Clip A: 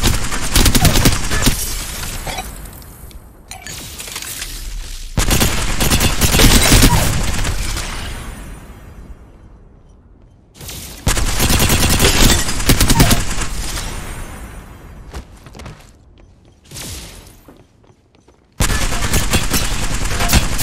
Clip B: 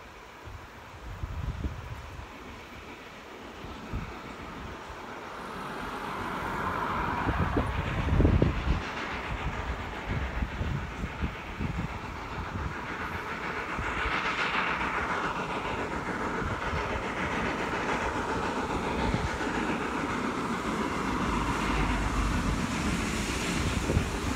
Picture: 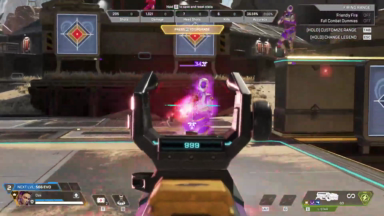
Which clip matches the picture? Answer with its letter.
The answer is A